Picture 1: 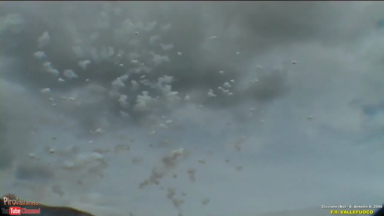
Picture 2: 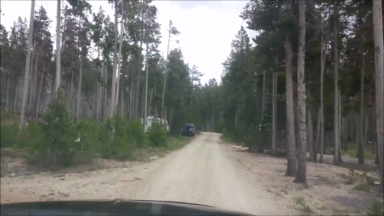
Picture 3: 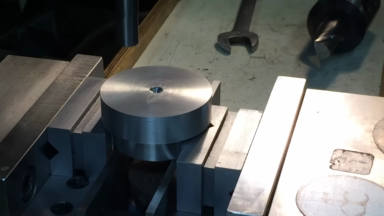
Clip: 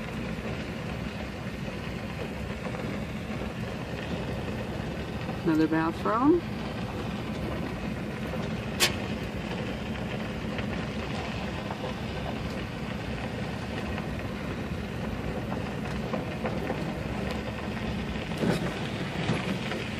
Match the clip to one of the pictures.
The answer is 2